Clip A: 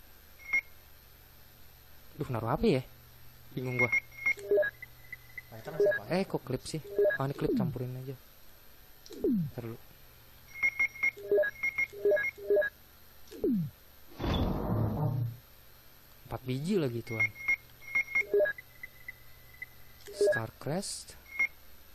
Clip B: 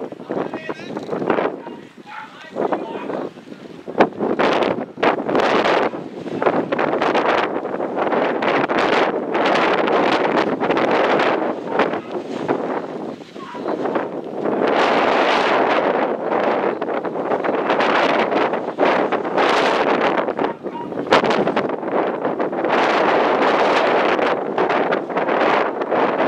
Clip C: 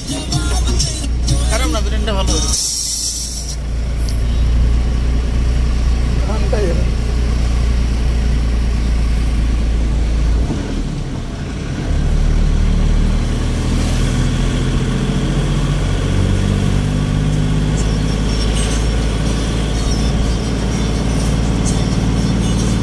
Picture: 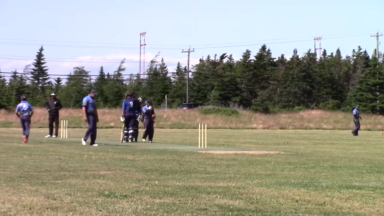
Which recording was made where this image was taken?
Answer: B